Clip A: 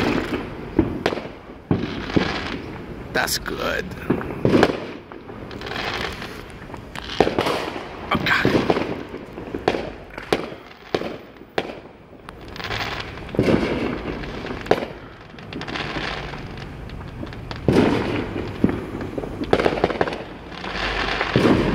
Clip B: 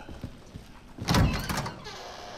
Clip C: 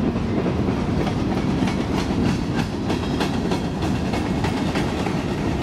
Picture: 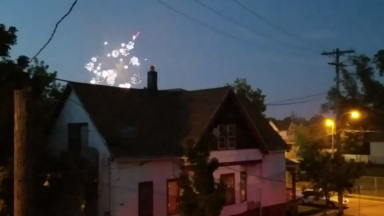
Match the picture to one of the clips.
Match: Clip A